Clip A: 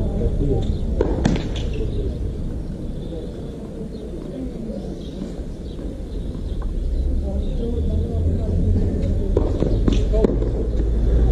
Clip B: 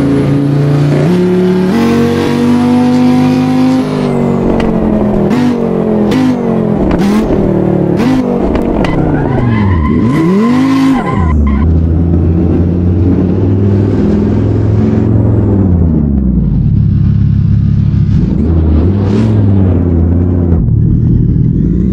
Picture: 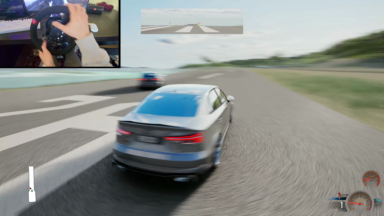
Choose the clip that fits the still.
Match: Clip B